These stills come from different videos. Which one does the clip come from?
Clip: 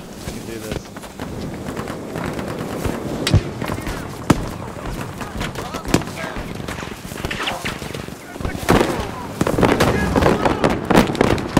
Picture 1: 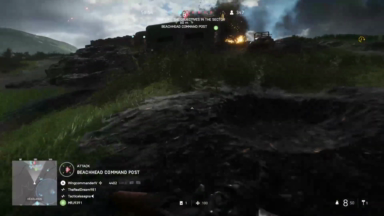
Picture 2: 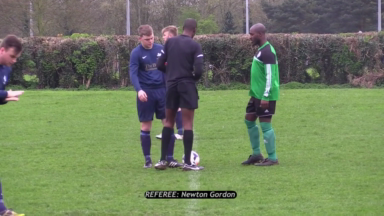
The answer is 1